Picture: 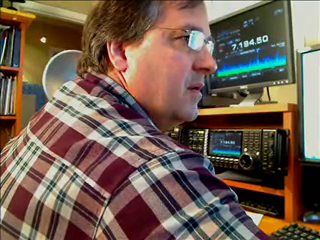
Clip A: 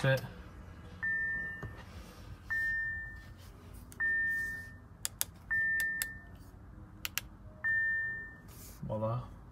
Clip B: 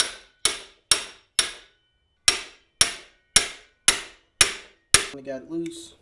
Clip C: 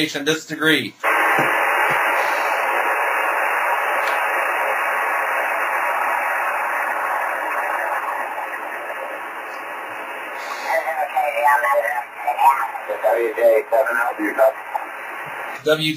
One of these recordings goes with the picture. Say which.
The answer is C